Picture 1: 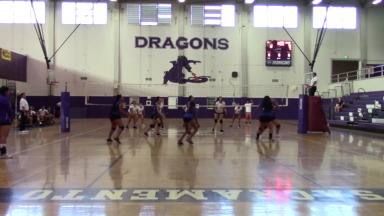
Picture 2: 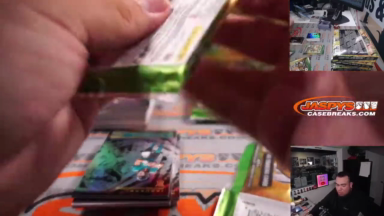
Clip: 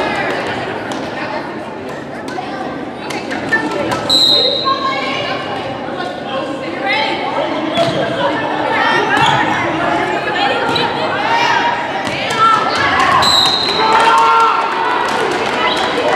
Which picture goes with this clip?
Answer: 1